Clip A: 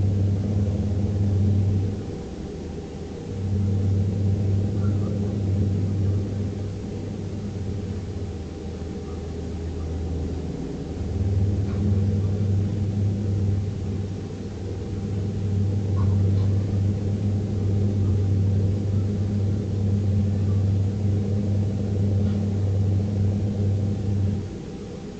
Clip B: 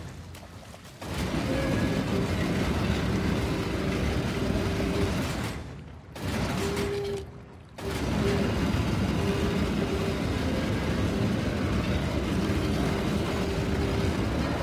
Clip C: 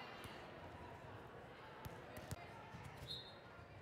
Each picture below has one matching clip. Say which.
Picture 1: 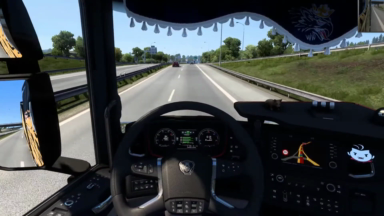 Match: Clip A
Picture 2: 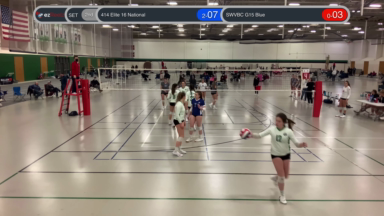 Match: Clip C